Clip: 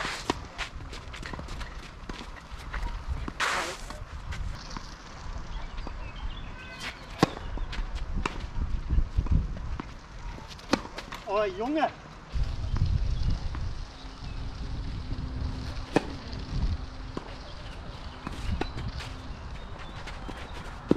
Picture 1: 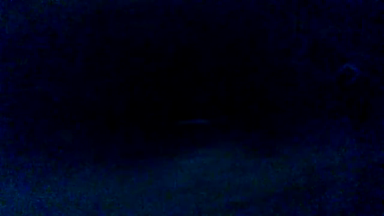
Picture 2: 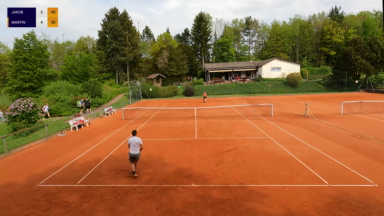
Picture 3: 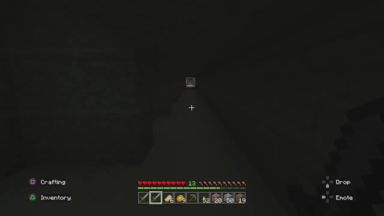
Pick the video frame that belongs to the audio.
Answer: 2